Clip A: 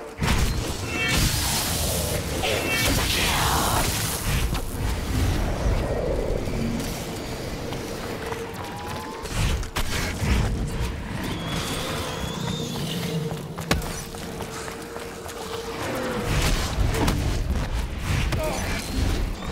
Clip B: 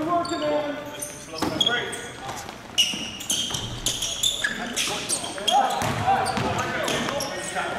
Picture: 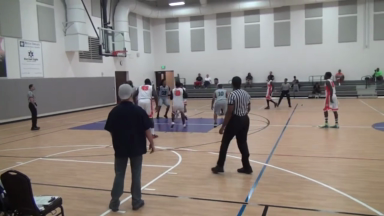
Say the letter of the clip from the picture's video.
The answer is B